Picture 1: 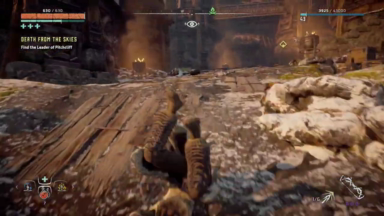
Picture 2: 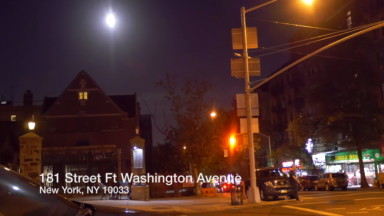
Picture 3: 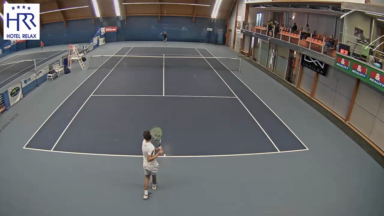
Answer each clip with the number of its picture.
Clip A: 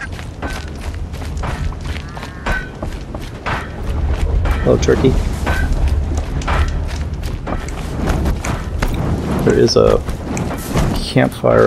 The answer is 1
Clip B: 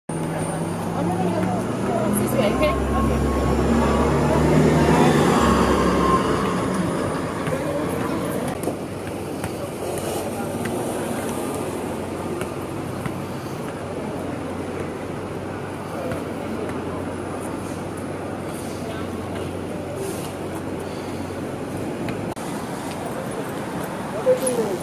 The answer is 2